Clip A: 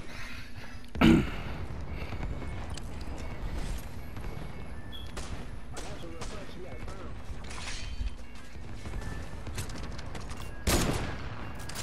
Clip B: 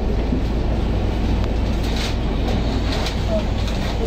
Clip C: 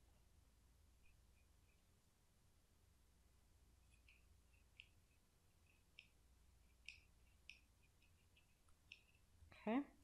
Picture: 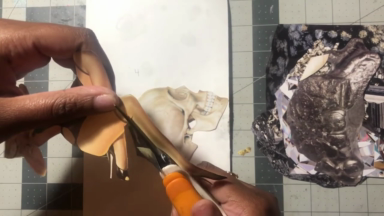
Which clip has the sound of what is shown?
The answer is C